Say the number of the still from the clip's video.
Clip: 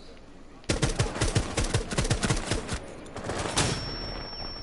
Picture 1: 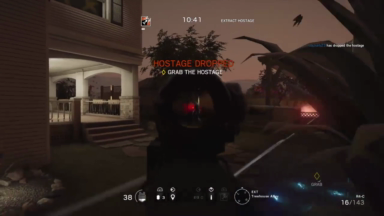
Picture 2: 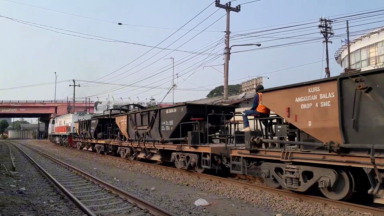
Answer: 1